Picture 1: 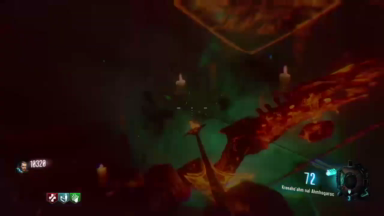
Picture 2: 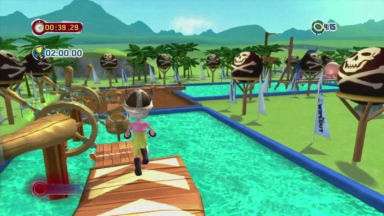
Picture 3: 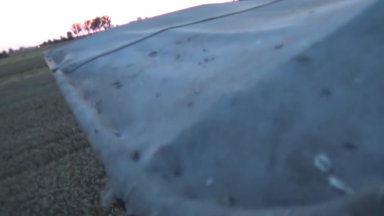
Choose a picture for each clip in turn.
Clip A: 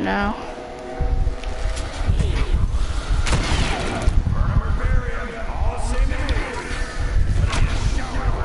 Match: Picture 1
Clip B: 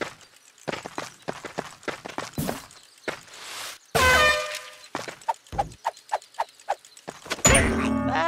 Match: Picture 2